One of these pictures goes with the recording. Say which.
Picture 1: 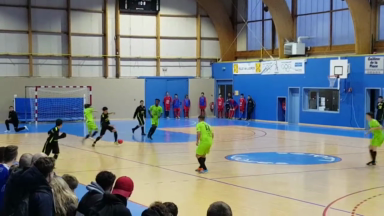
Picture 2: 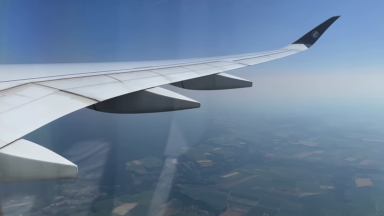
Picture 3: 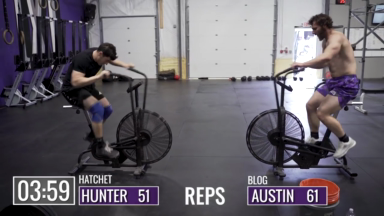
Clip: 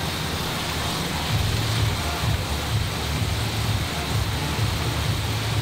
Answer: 3